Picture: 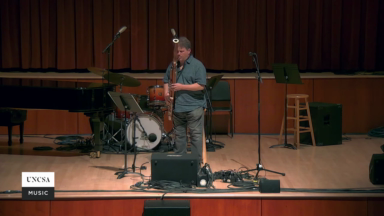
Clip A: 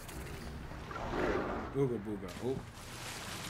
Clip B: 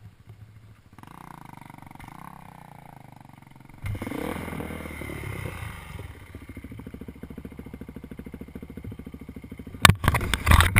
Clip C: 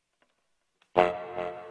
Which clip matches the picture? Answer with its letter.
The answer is C